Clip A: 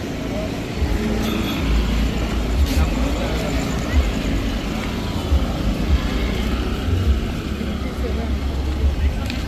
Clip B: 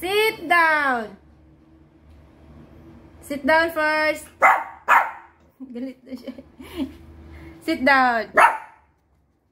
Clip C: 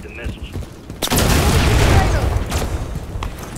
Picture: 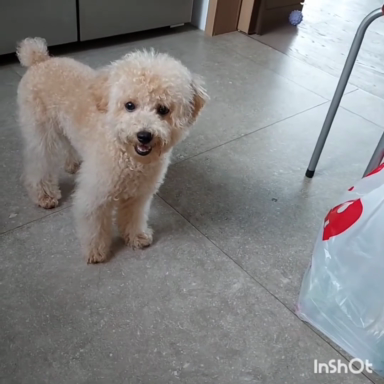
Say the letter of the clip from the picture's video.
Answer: B